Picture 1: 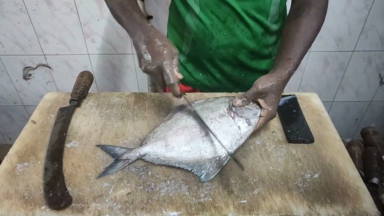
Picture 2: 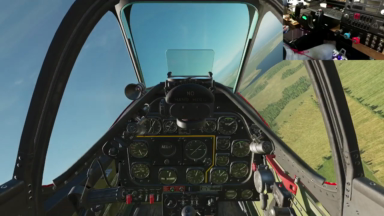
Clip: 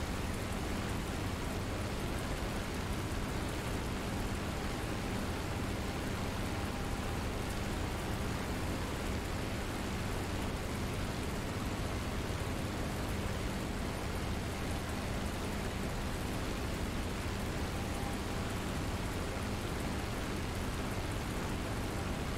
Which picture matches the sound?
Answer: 2